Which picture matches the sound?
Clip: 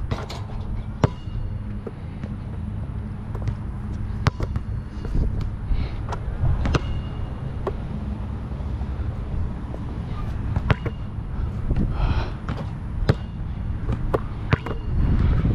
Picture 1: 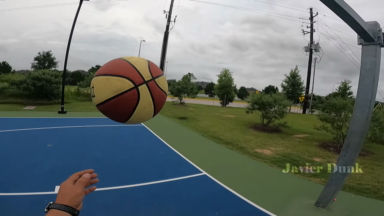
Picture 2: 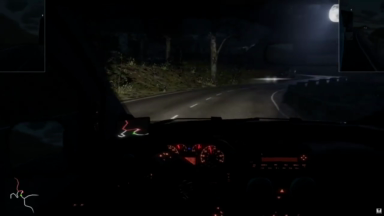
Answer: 1